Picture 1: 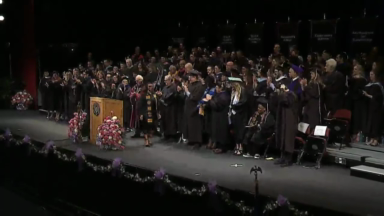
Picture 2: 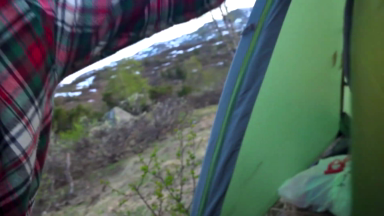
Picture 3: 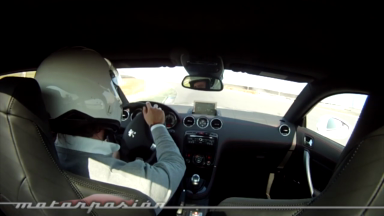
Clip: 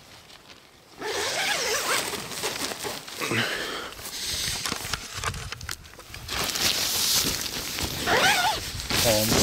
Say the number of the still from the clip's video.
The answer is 2